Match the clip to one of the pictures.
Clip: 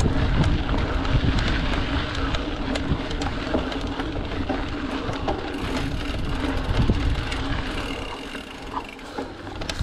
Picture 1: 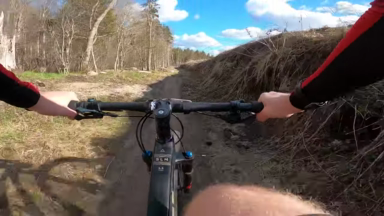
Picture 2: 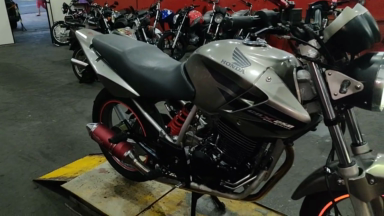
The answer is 1